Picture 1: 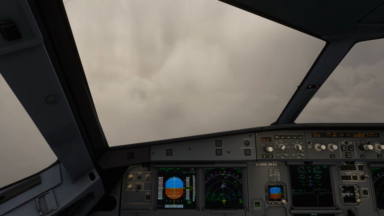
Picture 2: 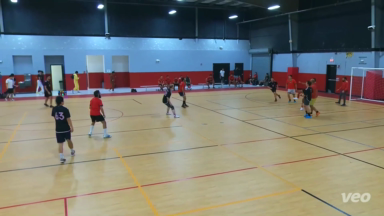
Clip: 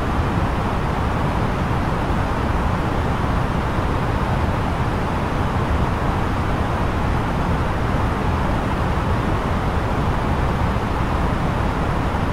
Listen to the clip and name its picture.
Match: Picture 1